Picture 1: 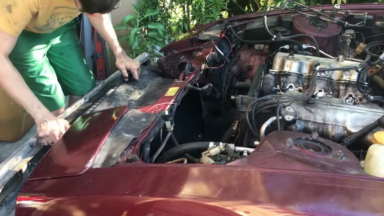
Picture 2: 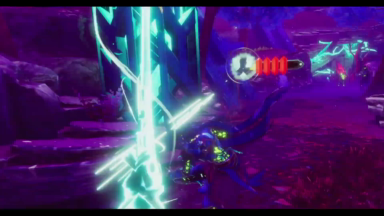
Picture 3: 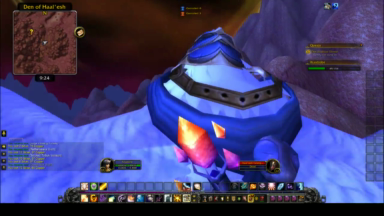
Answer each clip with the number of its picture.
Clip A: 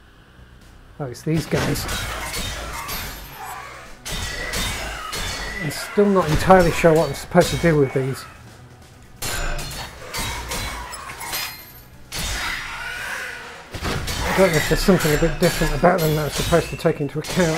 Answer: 2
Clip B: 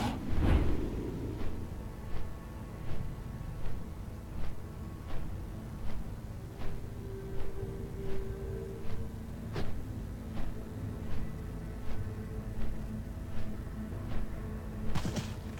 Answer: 3